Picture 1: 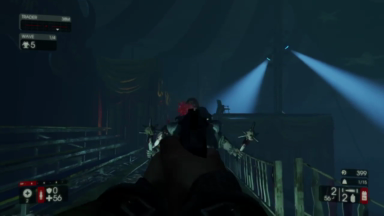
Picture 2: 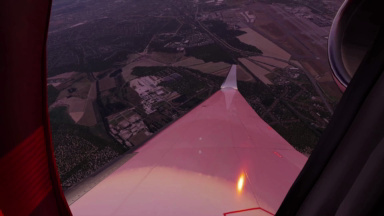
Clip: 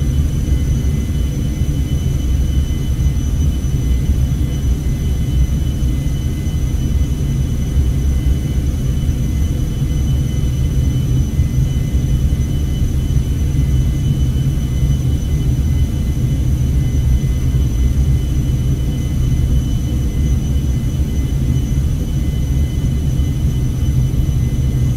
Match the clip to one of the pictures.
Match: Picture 2